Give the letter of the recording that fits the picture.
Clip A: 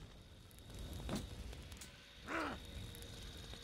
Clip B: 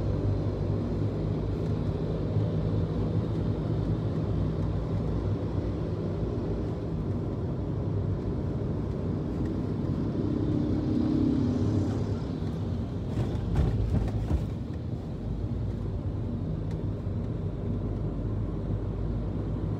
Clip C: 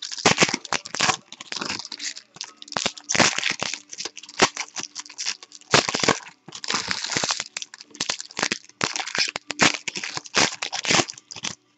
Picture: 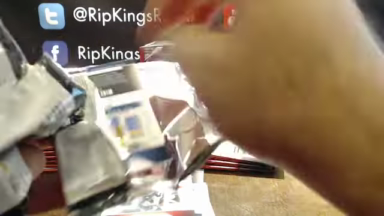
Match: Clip C